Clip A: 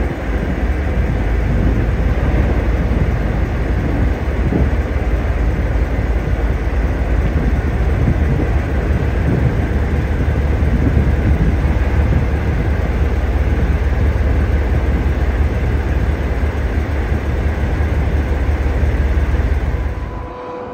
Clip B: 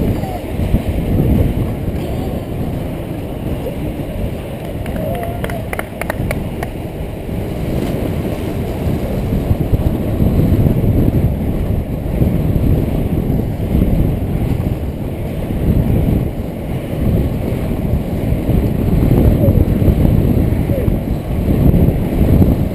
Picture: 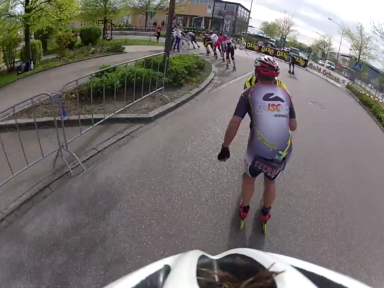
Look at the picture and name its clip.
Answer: B